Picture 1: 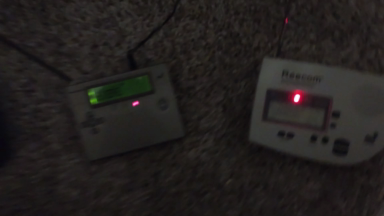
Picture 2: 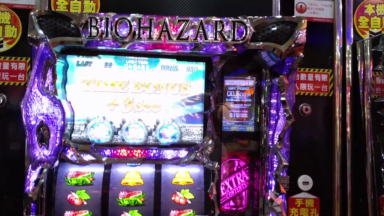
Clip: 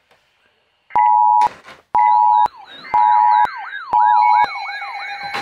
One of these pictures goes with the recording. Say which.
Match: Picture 1